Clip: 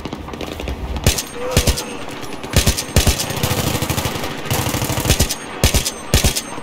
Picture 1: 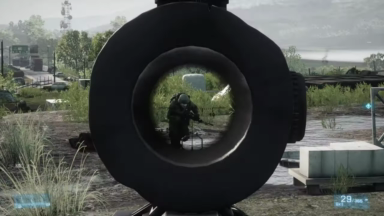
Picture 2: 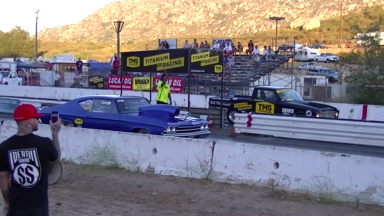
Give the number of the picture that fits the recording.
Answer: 1